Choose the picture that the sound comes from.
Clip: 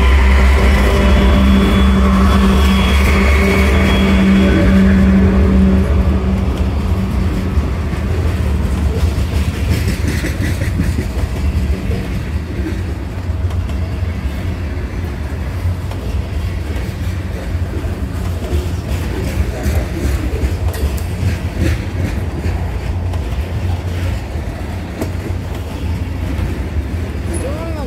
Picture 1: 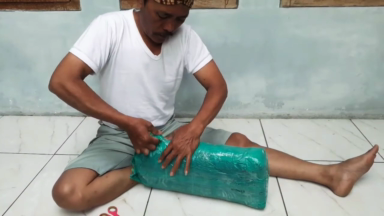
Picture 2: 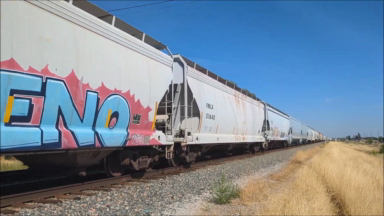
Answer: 2